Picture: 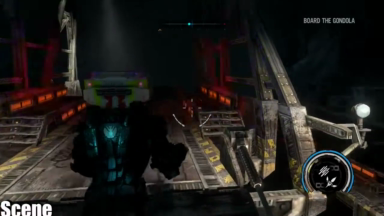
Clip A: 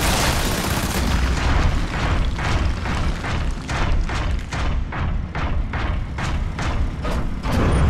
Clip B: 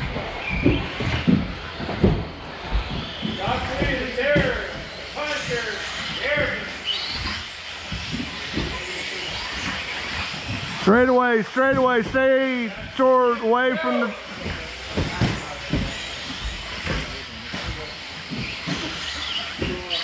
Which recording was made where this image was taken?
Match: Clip A